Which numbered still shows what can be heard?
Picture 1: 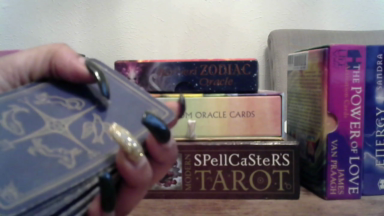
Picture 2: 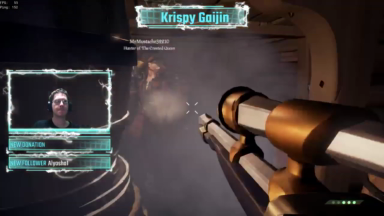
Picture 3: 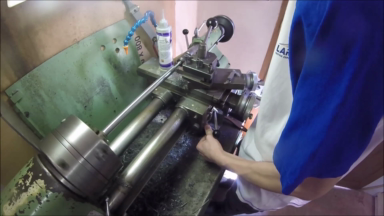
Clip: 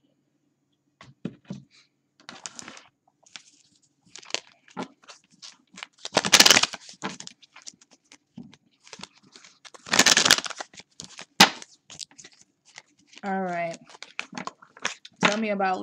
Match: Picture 1